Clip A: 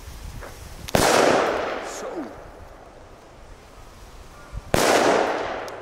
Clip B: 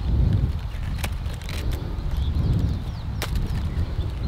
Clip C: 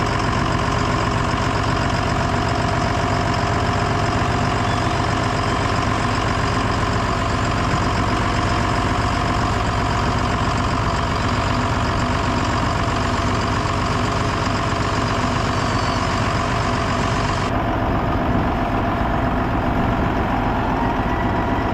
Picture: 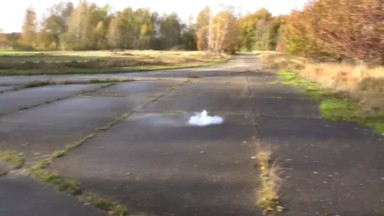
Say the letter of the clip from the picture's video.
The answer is A